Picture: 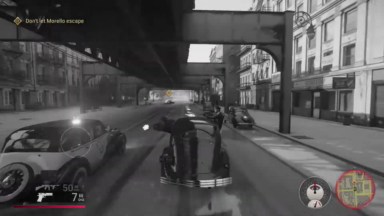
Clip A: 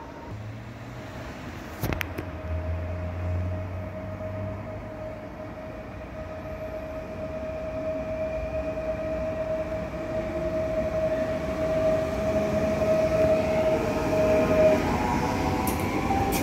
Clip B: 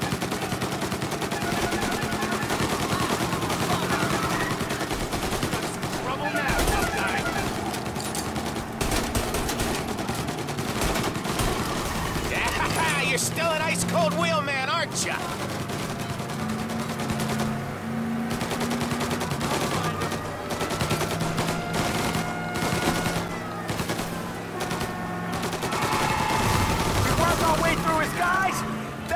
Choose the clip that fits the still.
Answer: B